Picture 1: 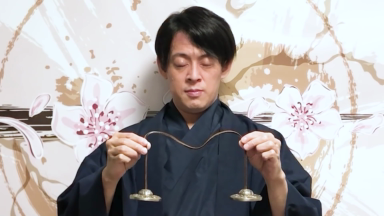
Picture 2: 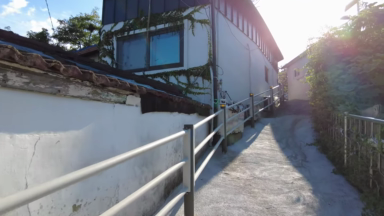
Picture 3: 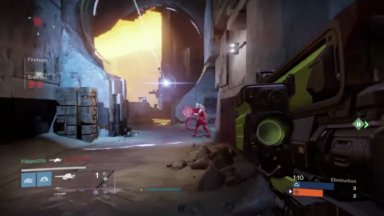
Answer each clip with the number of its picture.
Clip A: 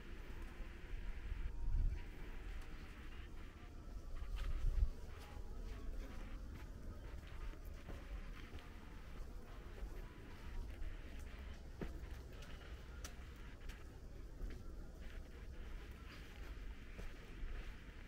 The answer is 2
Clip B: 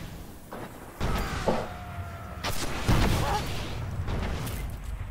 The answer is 3